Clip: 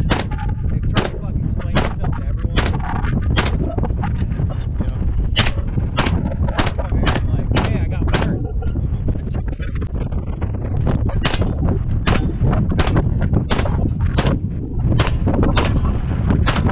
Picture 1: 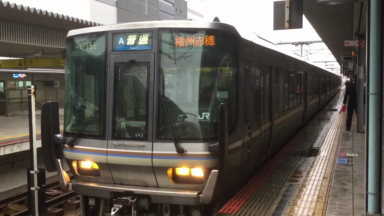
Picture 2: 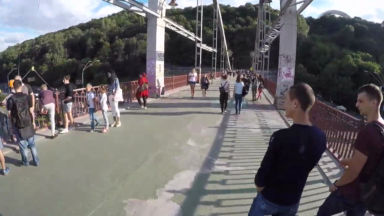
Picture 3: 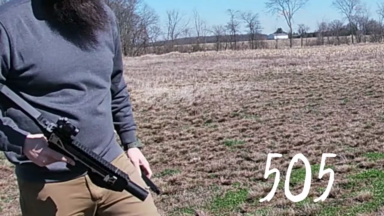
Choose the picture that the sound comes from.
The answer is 3